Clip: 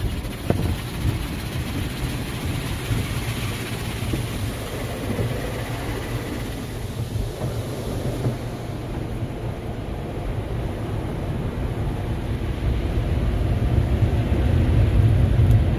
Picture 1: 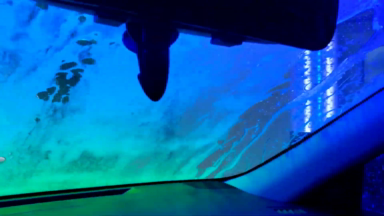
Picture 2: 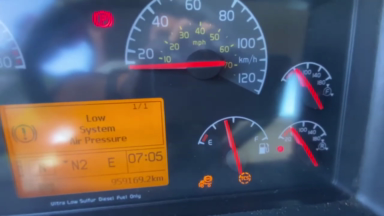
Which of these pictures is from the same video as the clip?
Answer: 1